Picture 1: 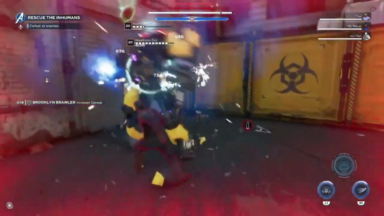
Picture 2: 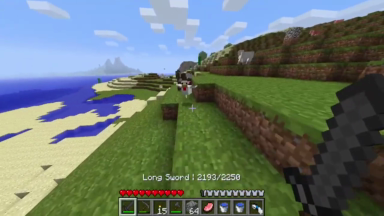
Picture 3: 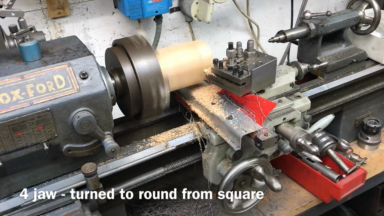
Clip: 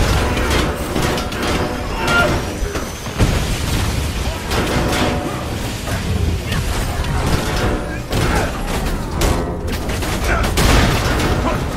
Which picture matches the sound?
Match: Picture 1